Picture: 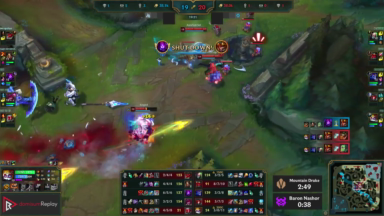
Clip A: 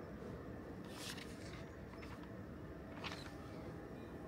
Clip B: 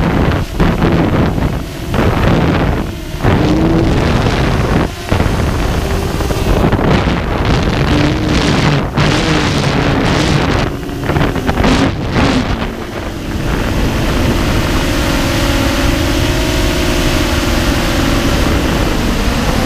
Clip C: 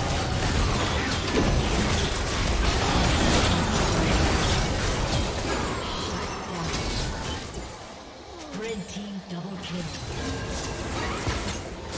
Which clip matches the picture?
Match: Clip C